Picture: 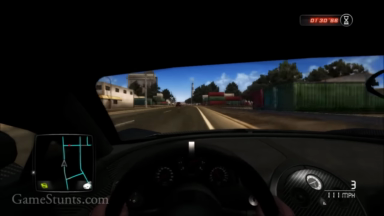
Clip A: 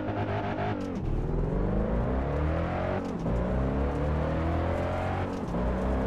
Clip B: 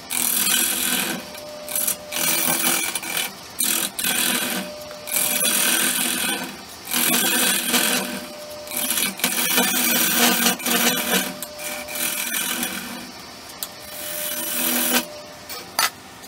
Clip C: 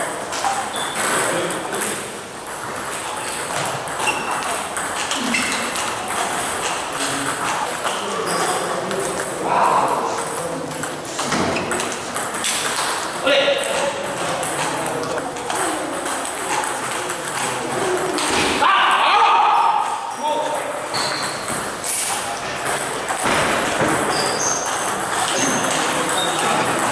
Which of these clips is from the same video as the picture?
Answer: A